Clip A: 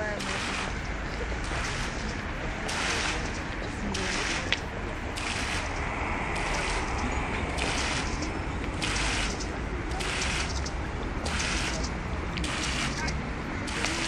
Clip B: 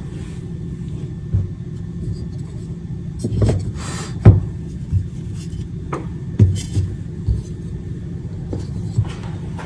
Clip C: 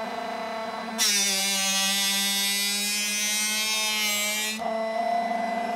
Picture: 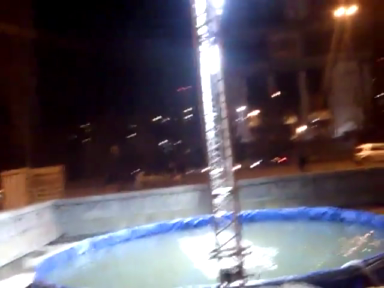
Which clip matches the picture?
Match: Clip A